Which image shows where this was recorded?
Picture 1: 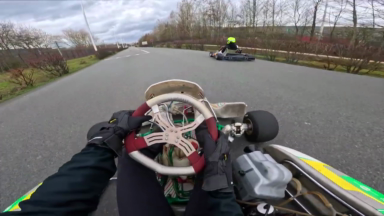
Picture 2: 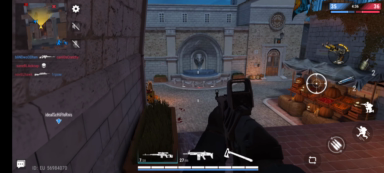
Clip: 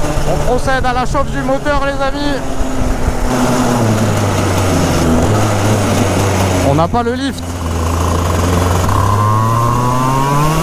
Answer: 1